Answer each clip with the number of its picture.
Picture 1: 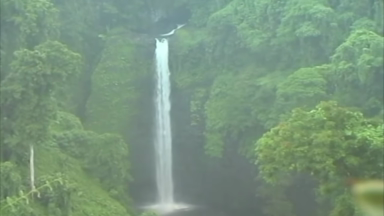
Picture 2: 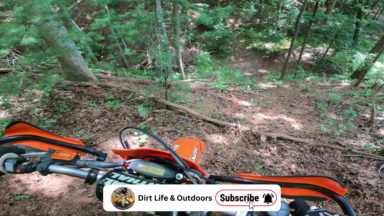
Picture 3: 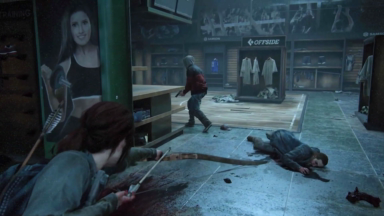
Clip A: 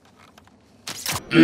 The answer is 3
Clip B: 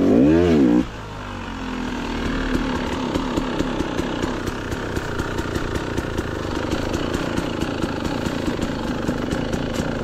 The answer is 2